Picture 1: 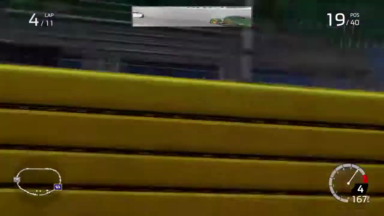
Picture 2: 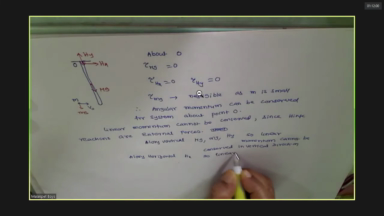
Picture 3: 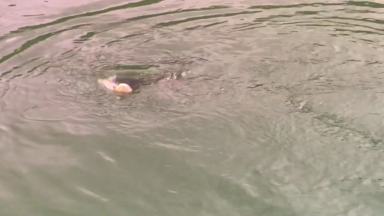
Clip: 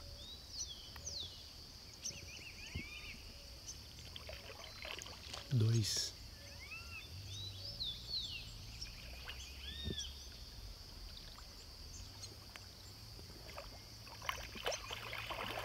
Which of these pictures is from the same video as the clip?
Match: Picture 3